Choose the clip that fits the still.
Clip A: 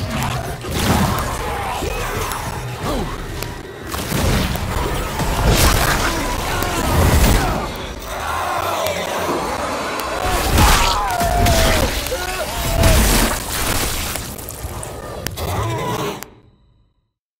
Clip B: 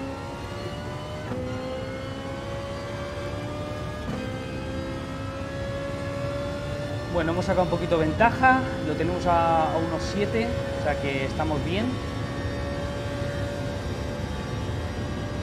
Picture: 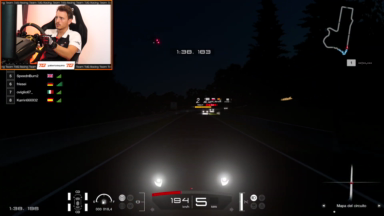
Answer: B